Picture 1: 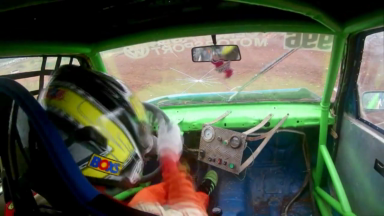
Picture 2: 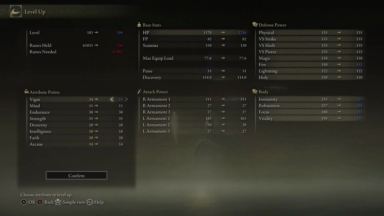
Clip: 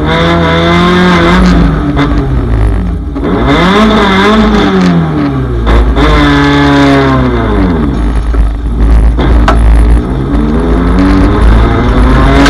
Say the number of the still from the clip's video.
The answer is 1